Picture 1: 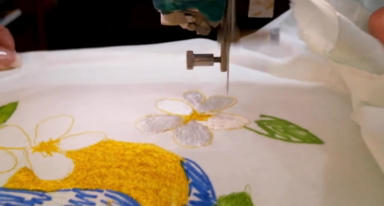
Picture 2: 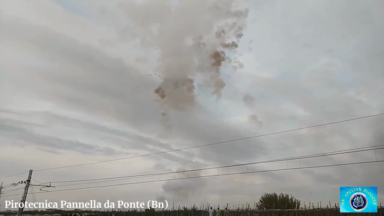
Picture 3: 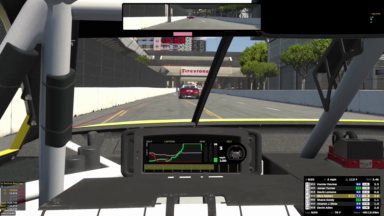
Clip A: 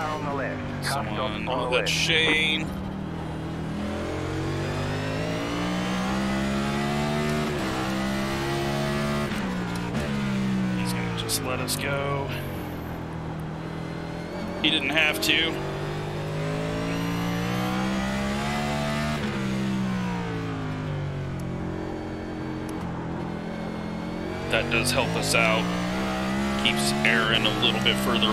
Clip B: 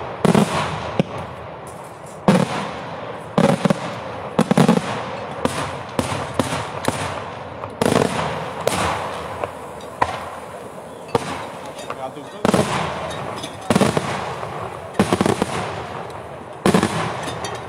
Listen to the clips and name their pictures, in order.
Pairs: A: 3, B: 2